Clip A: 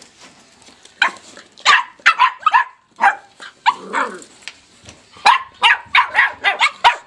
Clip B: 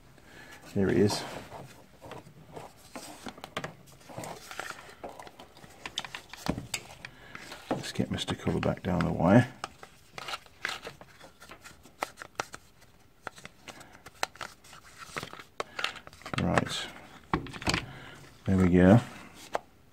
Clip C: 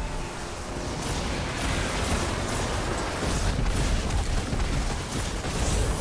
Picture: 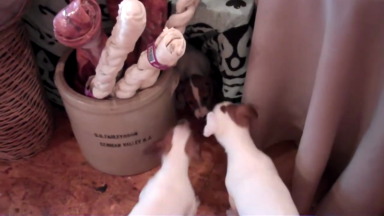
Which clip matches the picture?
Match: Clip A